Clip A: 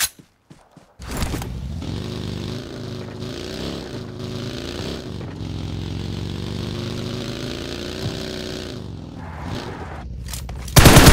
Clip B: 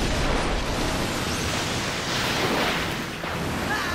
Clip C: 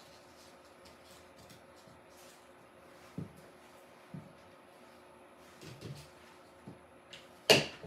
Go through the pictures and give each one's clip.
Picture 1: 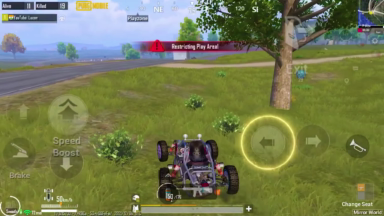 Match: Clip A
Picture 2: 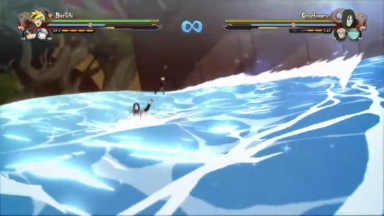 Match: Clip B